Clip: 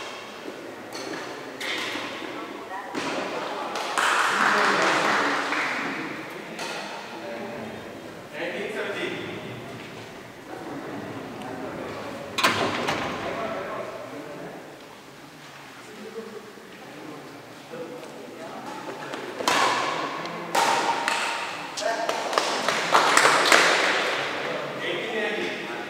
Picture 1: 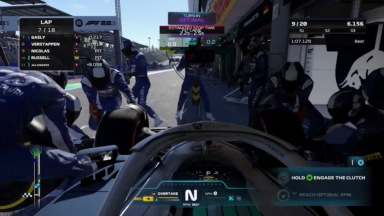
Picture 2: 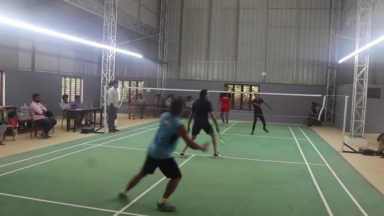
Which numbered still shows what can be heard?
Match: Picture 2